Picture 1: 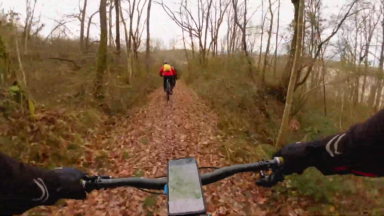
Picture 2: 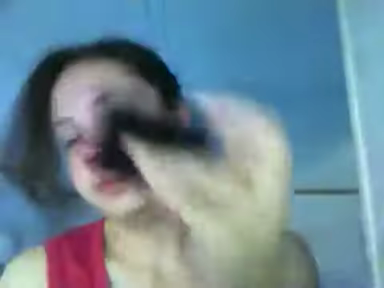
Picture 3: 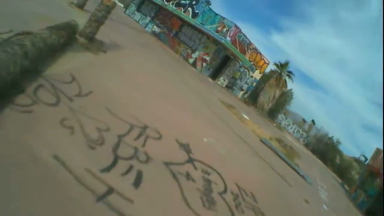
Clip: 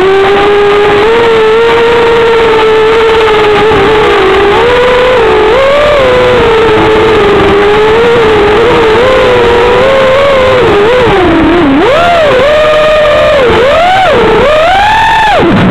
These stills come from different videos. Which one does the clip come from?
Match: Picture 3